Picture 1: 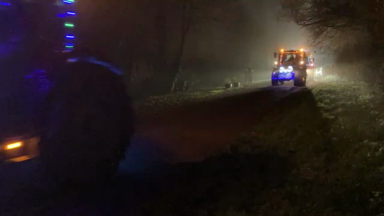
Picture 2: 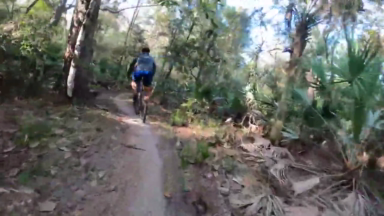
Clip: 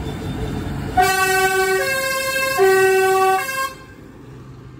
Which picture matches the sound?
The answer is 1